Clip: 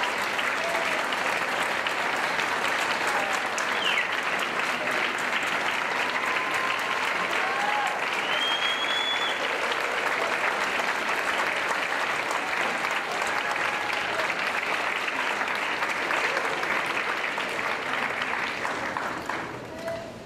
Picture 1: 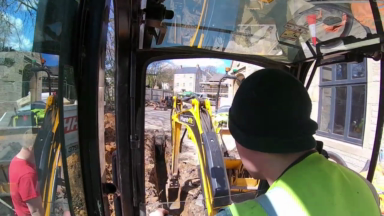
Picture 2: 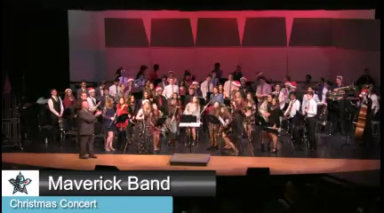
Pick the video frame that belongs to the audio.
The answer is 2